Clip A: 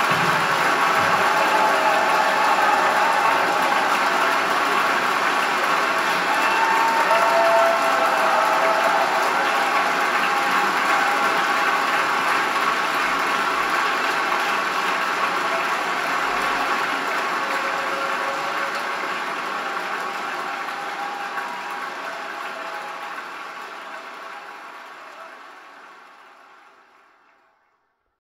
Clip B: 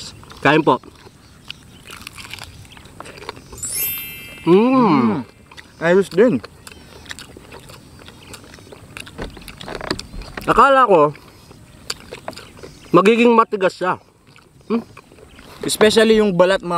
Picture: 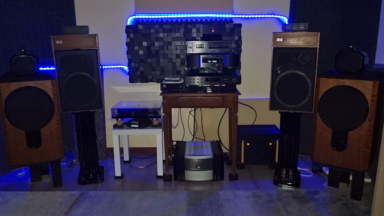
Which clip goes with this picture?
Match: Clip A